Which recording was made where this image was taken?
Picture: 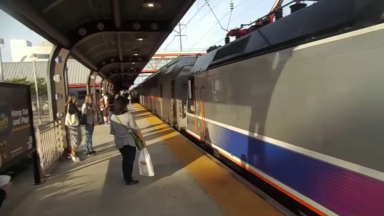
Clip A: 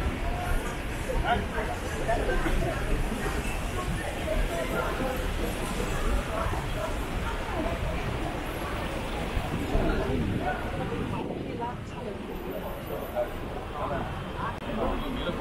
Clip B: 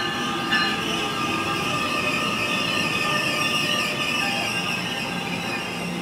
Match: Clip B